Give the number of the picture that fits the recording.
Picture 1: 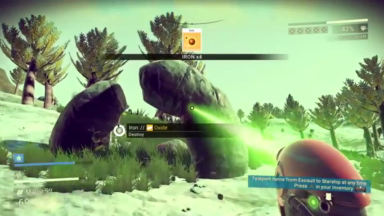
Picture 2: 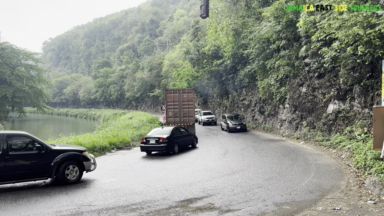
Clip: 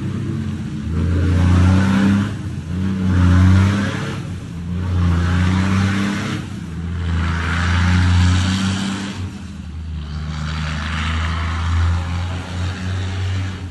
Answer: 2